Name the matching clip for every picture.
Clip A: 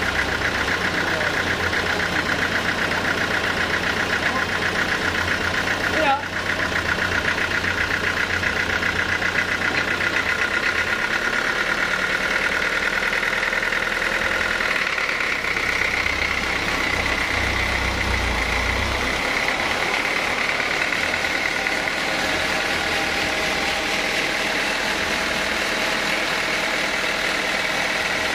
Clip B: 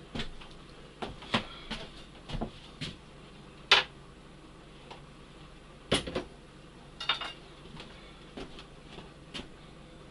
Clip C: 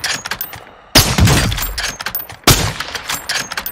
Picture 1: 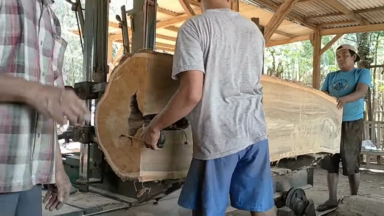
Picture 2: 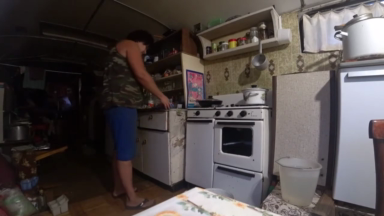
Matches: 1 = A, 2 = B